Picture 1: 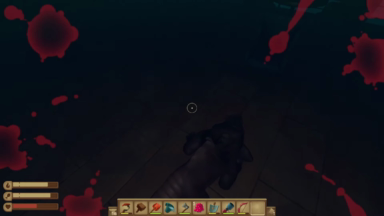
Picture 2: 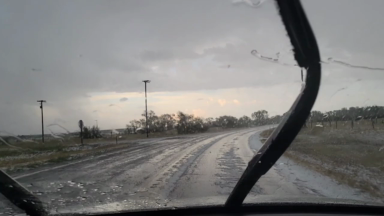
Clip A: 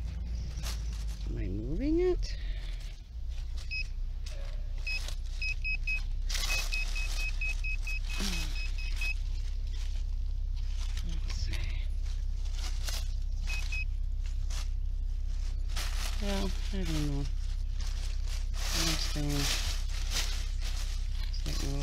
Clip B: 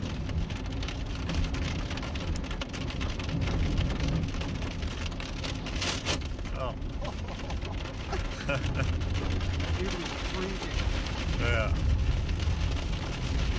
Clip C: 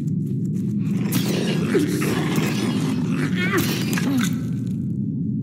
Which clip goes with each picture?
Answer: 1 C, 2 B